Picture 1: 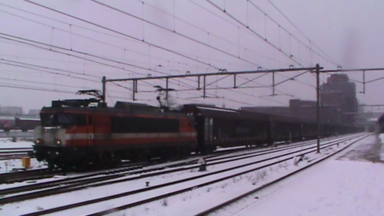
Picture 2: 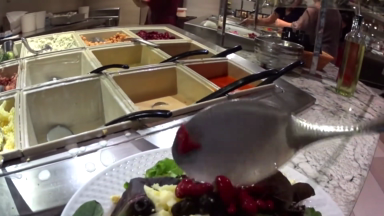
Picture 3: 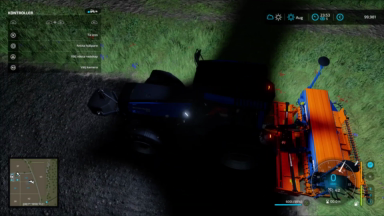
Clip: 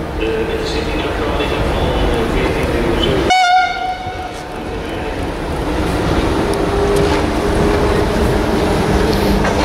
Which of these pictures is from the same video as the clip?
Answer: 1